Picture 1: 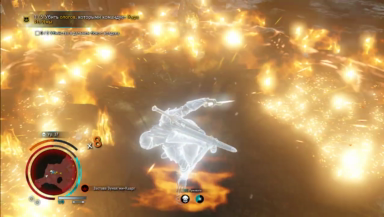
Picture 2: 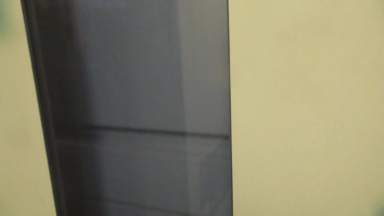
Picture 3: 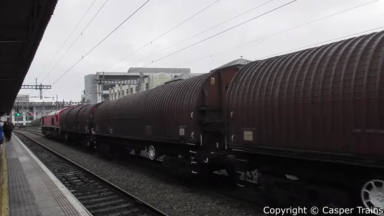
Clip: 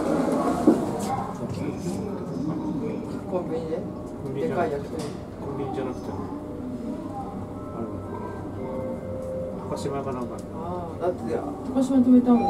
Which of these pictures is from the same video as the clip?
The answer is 2